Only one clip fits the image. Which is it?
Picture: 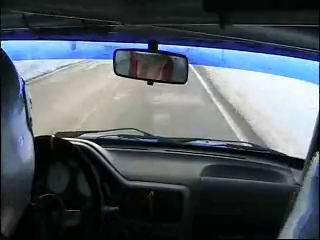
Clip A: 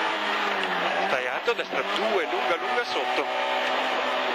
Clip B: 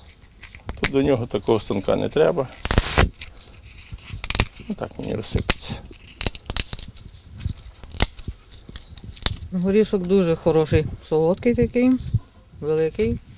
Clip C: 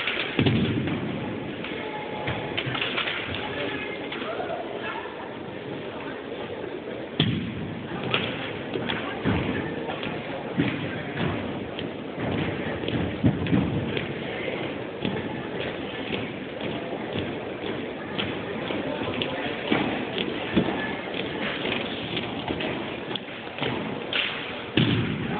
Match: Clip A